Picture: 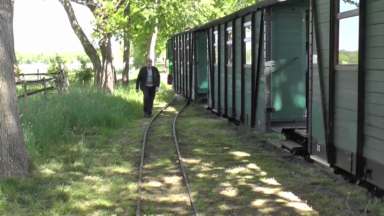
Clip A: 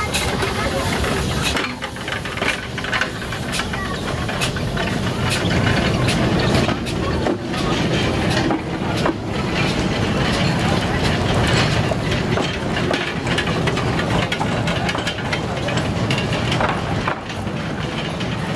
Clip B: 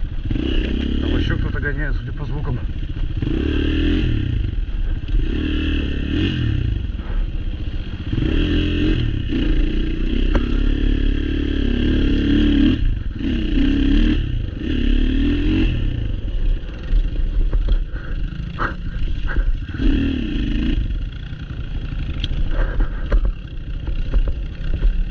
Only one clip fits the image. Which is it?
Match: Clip A